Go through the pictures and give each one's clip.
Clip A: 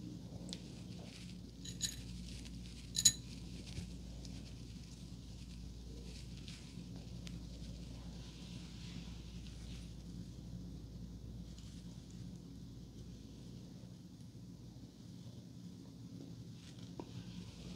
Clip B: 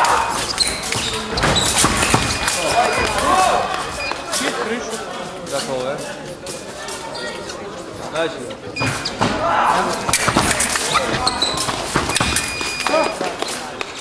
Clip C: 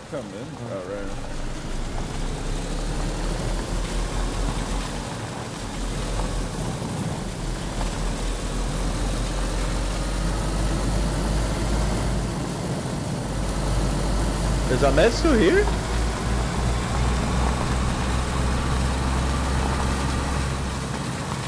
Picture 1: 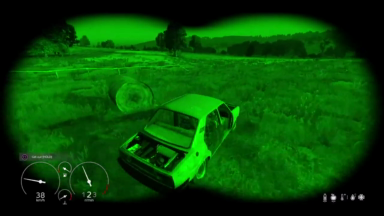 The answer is C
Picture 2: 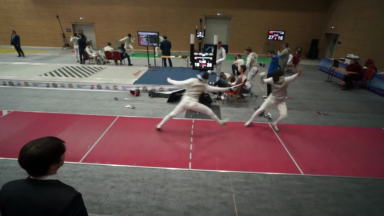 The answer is B